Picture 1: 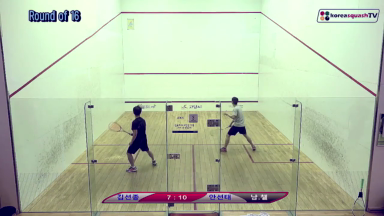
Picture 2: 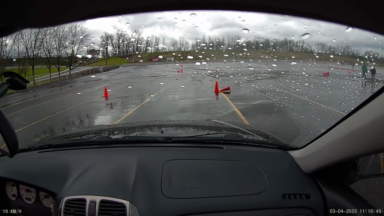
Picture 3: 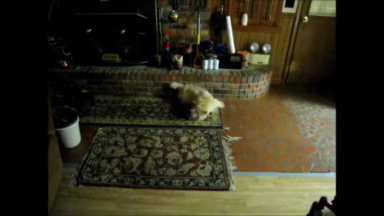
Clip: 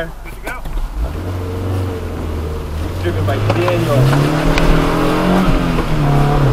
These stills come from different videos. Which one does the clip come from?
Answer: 2